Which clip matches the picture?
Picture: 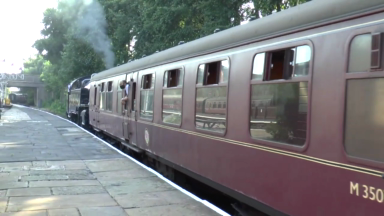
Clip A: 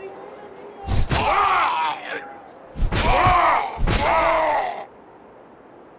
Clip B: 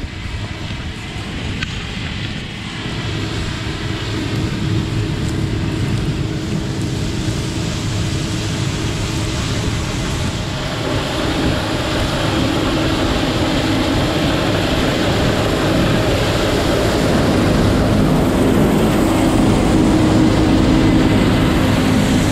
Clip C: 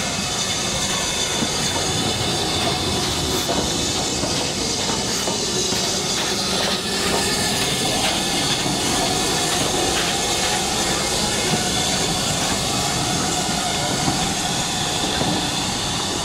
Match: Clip C